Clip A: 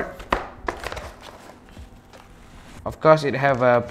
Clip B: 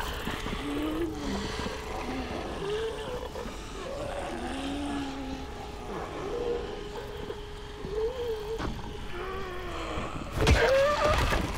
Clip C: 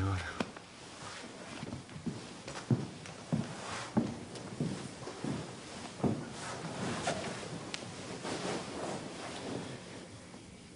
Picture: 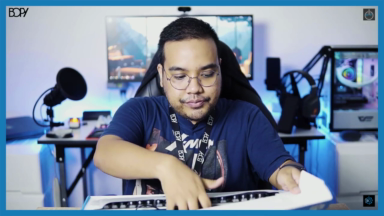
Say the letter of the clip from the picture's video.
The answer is A